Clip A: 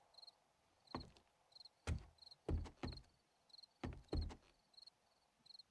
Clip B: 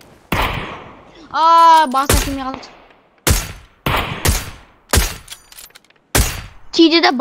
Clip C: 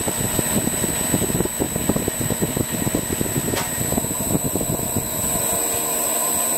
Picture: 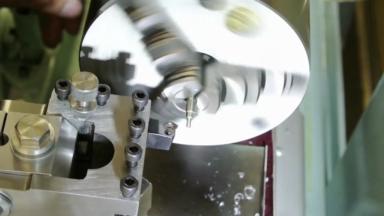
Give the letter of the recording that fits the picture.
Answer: C